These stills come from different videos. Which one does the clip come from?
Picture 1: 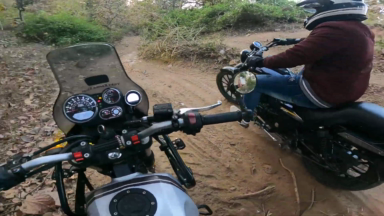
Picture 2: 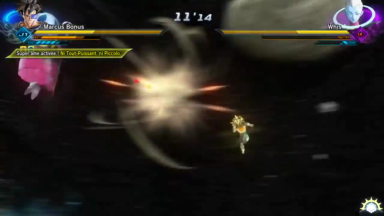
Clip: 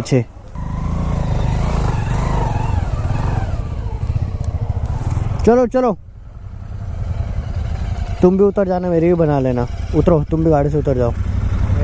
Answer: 1